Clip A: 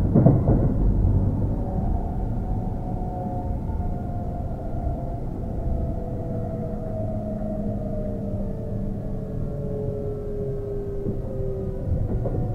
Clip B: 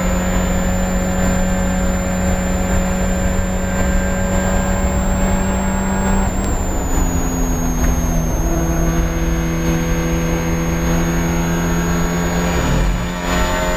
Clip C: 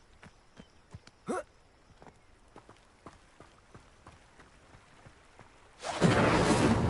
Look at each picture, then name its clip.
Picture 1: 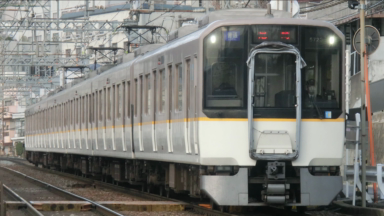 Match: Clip A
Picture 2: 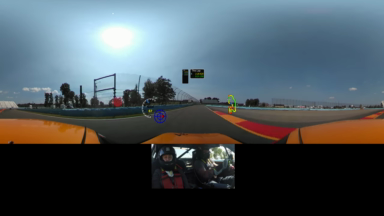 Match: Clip B